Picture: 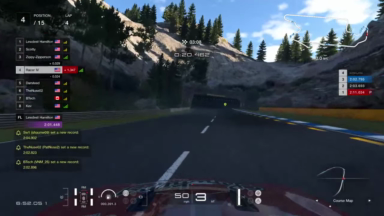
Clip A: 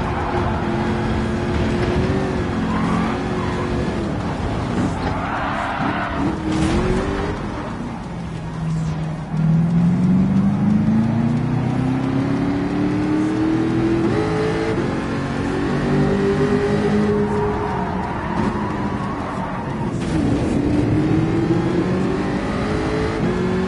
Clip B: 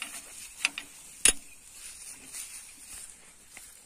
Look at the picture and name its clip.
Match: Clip A